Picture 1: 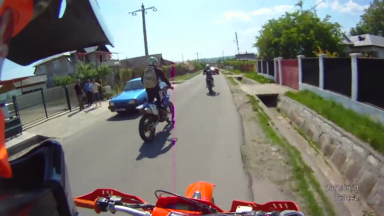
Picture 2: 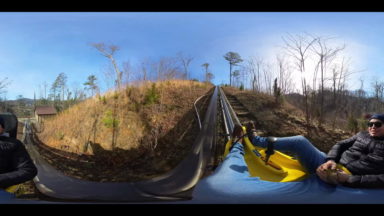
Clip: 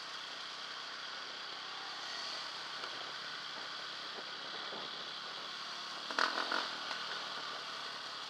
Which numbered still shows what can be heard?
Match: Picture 1